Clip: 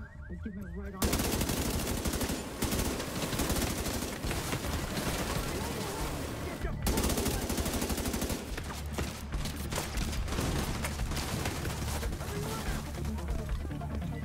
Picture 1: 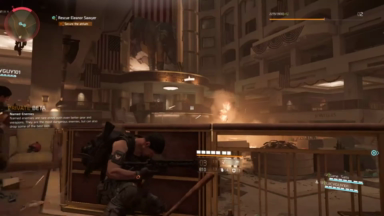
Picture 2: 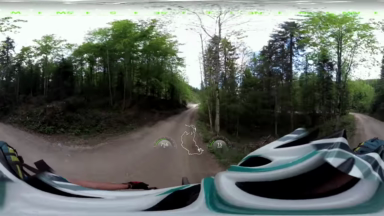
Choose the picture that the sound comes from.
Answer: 1